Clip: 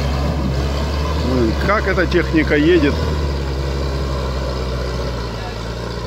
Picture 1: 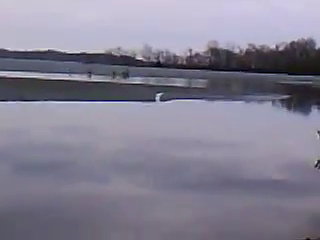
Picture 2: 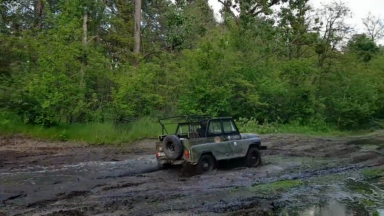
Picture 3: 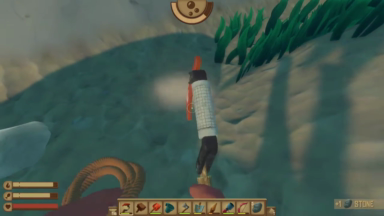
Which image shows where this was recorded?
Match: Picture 2